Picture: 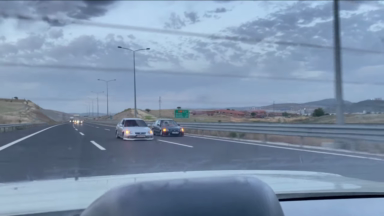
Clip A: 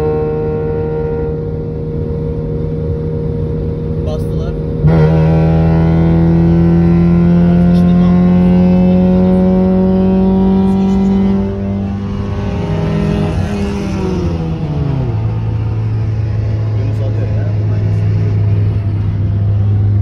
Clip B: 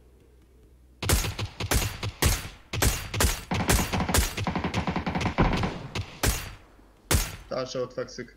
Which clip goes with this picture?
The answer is A